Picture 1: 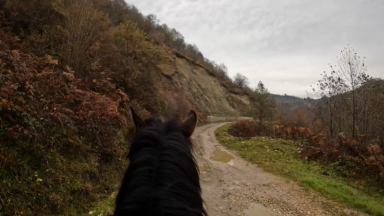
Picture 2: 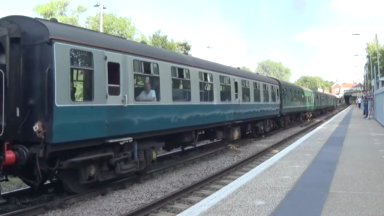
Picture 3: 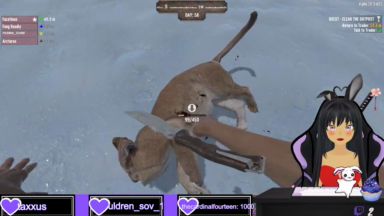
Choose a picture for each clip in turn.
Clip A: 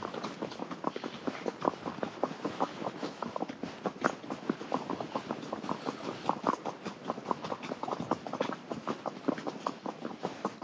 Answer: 1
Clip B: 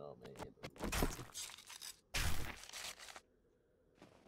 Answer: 3